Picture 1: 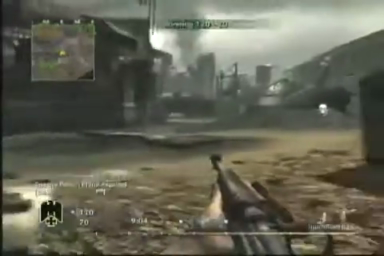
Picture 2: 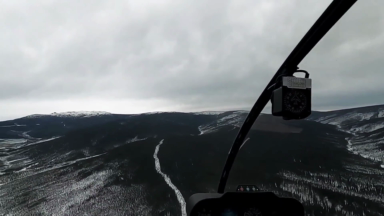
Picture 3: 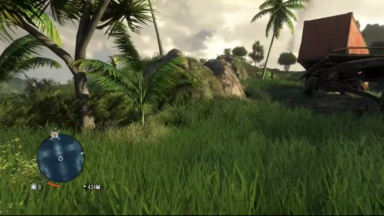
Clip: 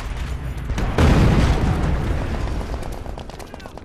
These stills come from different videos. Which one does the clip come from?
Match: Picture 1